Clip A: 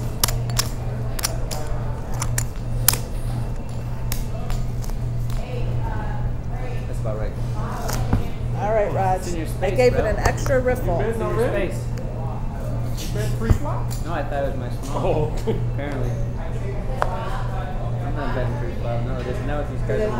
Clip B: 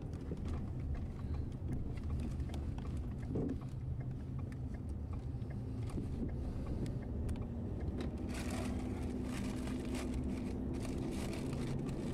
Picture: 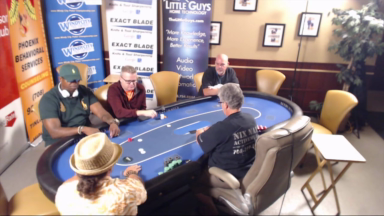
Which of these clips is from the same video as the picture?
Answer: A